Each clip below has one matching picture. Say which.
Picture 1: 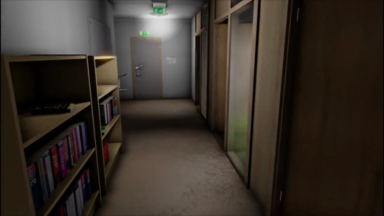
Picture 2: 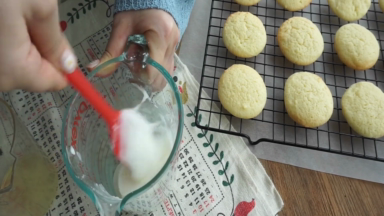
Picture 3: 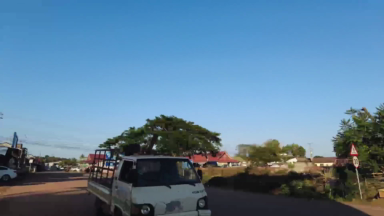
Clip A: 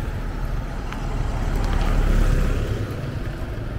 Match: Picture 3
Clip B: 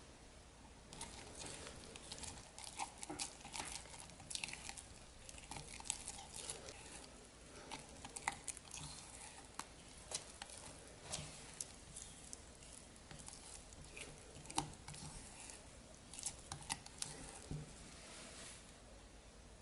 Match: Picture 2